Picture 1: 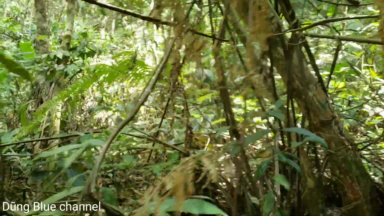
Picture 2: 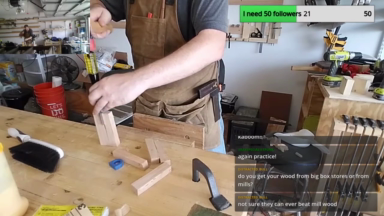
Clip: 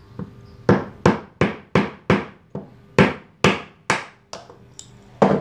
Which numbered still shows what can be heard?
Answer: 2